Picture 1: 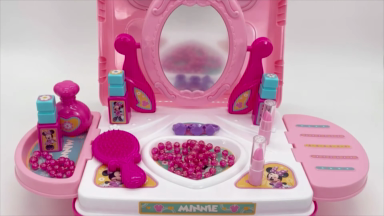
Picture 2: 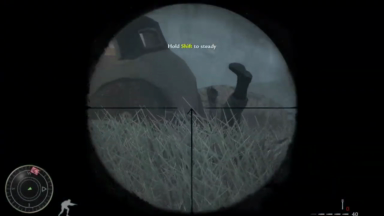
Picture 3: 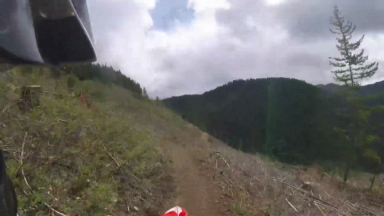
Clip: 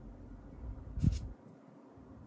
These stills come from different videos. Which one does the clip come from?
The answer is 1